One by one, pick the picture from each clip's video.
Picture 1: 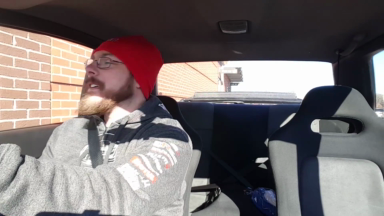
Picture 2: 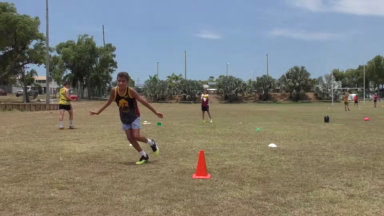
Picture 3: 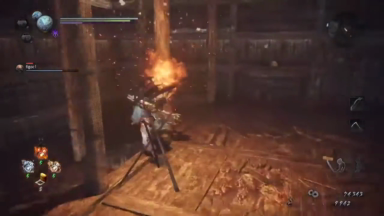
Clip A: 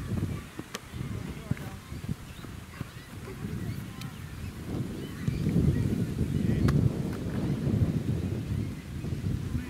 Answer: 2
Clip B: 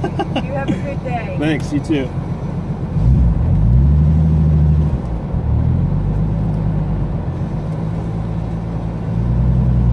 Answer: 1